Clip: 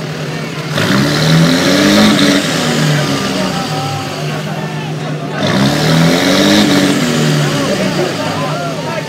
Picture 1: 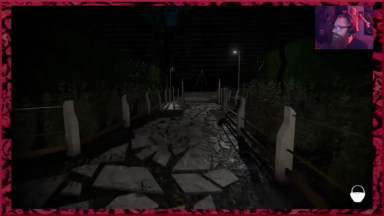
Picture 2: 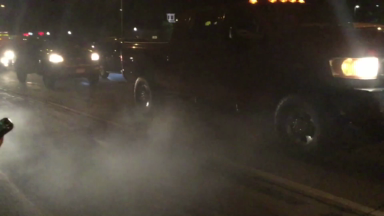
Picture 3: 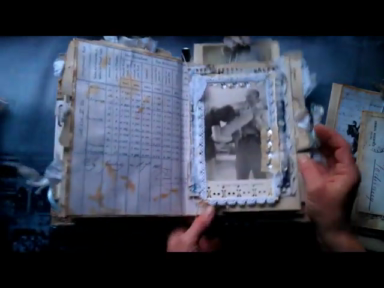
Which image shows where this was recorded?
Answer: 2